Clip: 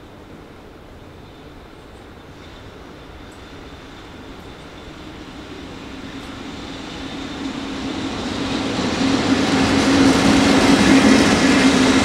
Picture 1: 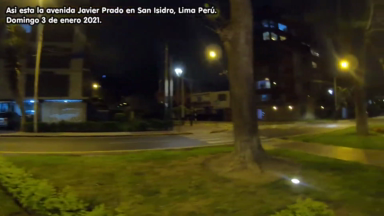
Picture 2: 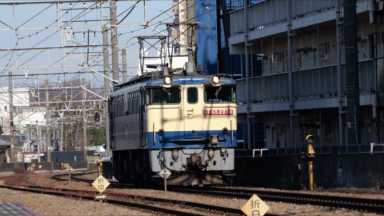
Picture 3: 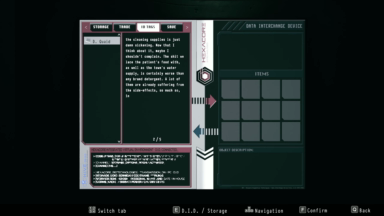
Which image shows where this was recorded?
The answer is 2